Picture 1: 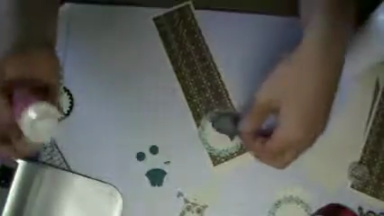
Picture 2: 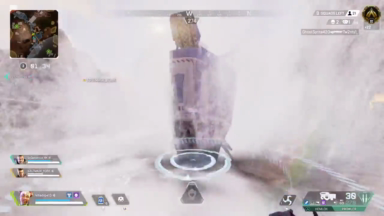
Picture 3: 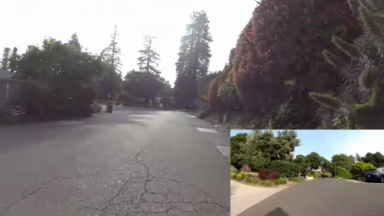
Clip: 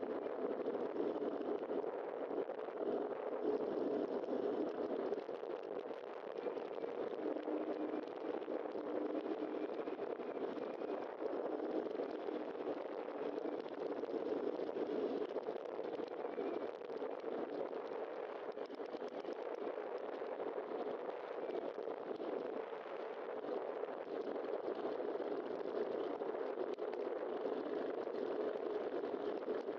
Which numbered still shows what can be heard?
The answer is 3